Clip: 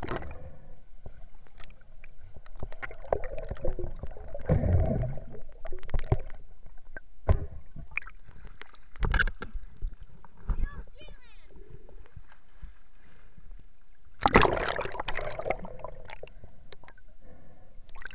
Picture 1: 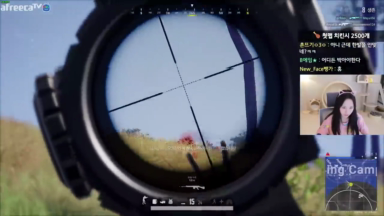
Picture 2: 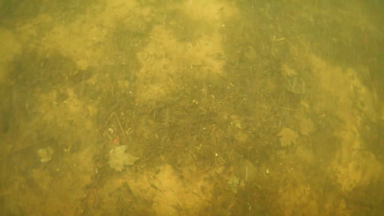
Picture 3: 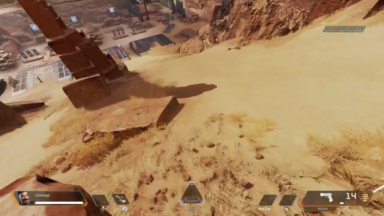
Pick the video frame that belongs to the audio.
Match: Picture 2